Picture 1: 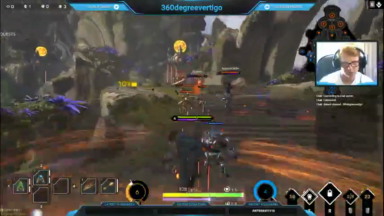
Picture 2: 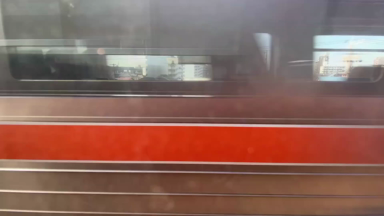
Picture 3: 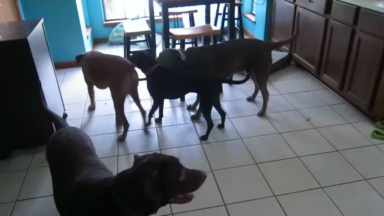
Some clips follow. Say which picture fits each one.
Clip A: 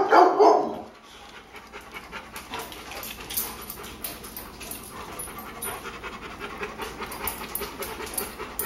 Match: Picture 3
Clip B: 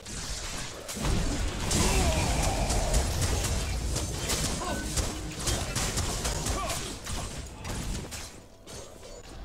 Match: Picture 1